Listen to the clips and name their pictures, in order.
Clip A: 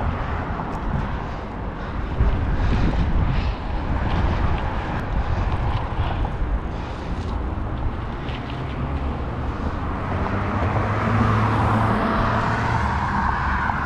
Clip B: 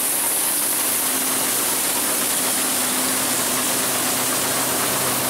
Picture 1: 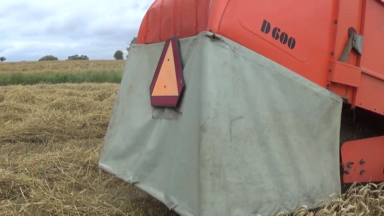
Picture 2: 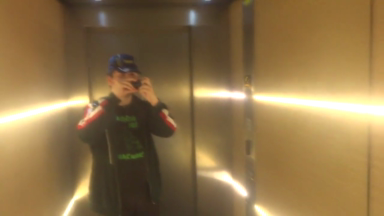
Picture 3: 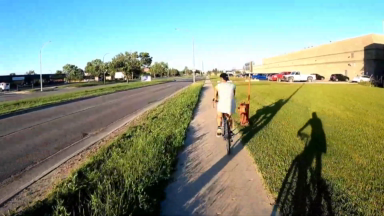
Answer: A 3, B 1